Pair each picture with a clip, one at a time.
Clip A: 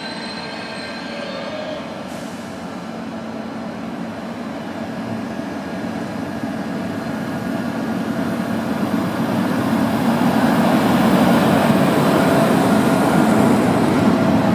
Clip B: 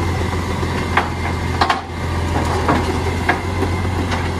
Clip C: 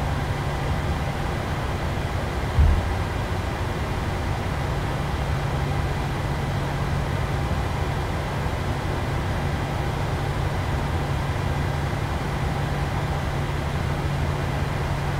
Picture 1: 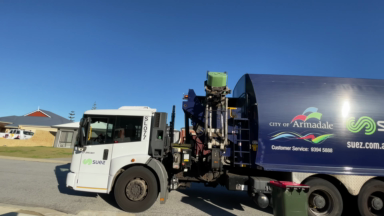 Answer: B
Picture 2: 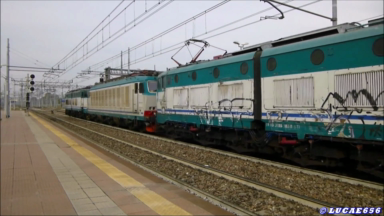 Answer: A